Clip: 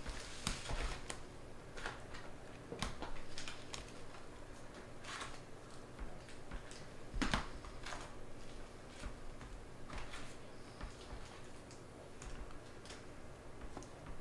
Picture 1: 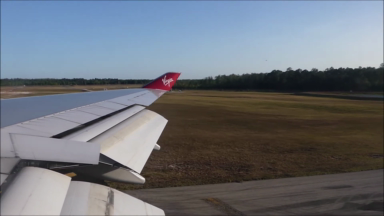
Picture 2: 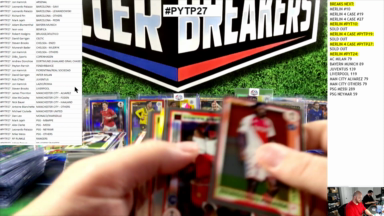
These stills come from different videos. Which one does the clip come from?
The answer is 2